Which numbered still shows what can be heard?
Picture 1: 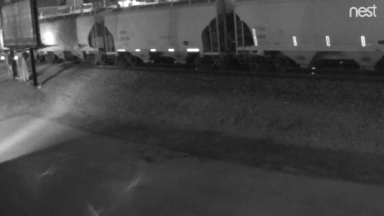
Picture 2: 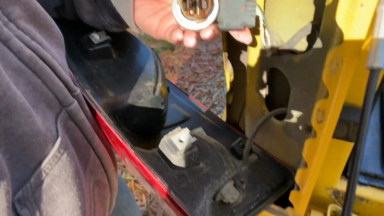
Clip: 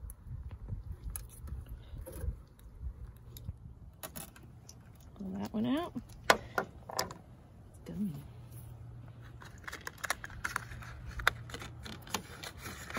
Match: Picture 2